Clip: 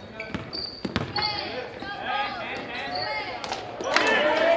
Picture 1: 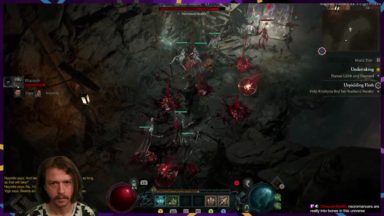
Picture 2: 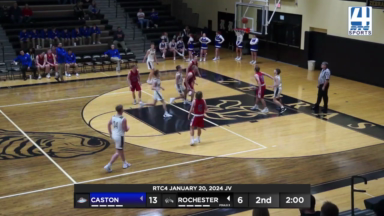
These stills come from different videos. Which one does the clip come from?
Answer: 2